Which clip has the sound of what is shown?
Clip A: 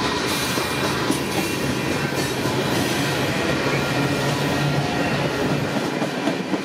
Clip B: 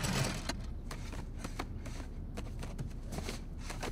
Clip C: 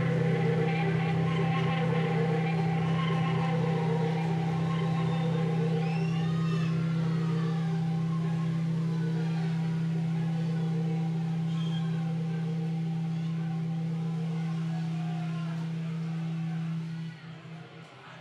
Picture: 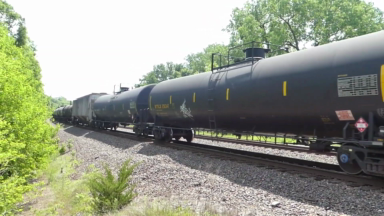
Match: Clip A